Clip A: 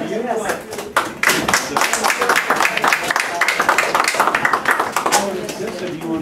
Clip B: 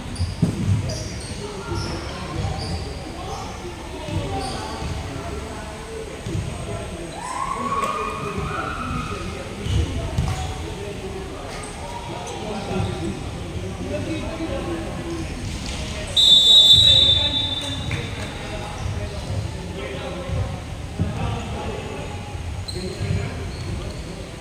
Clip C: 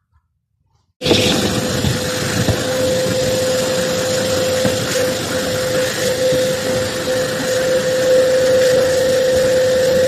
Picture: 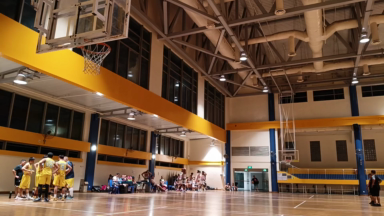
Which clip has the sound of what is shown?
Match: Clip B